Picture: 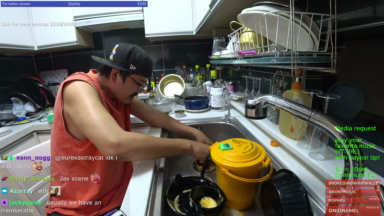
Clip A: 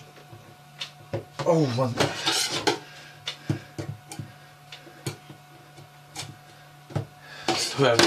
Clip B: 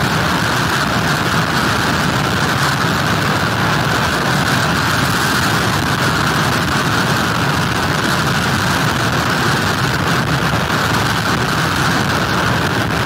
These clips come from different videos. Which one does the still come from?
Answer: A